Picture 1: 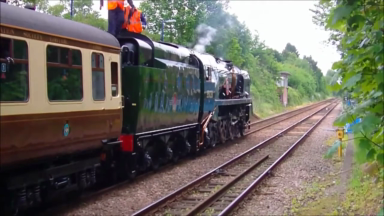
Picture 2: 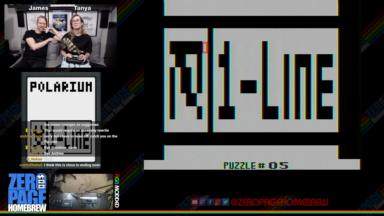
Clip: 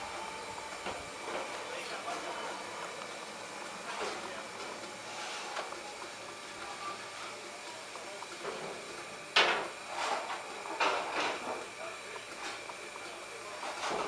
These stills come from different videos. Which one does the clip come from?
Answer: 1